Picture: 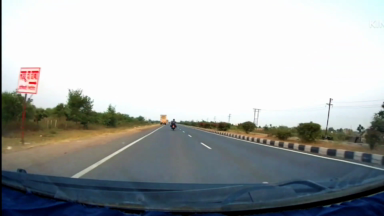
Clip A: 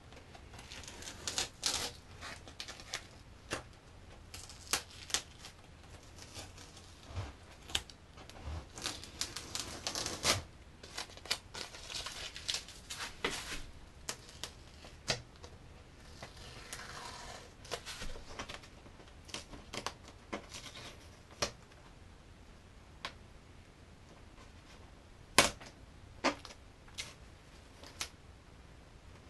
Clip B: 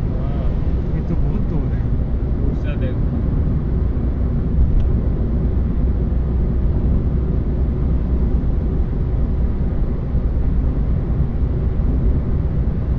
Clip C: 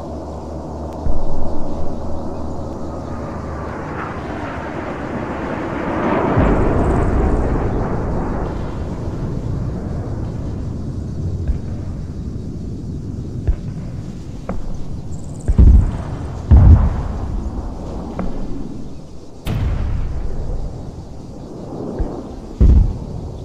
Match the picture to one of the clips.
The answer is B